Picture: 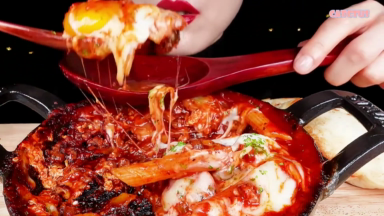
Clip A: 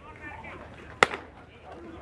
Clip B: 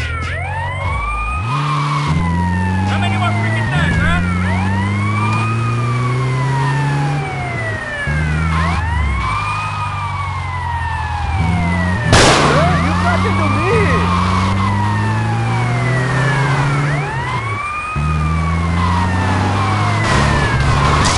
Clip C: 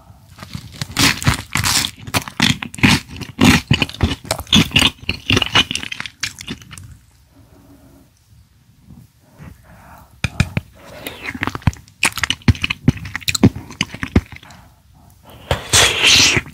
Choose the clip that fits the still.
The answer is C